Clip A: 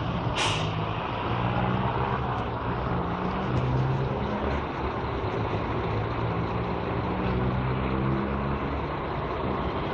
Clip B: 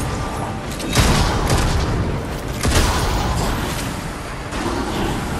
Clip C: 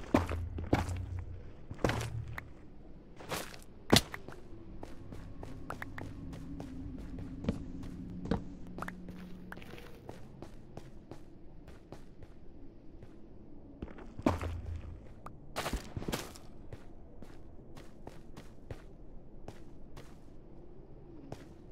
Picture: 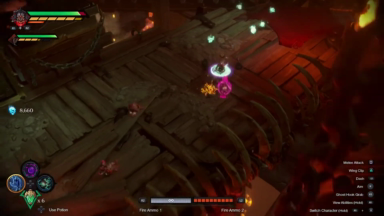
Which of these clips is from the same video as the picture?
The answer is B